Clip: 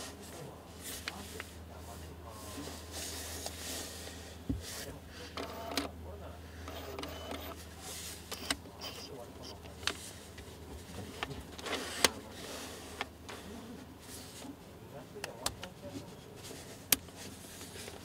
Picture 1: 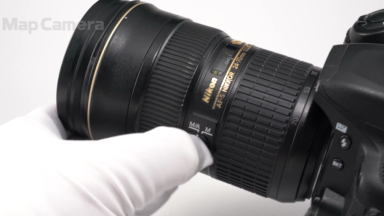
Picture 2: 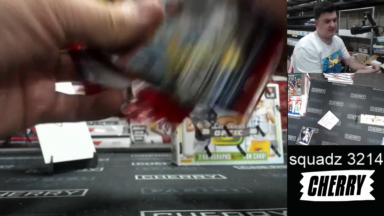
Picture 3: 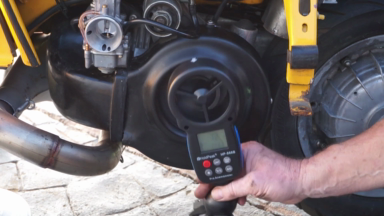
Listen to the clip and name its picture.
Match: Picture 1